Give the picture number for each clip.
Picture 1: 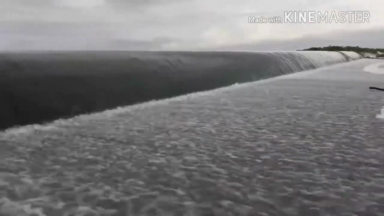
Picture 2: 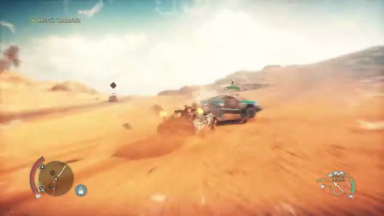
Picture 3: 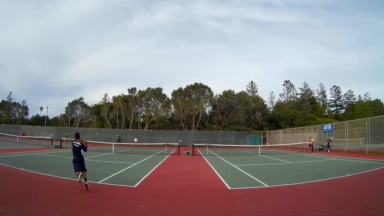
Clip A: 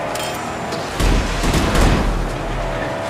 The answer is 2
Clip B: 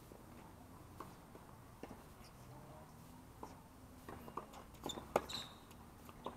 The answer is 3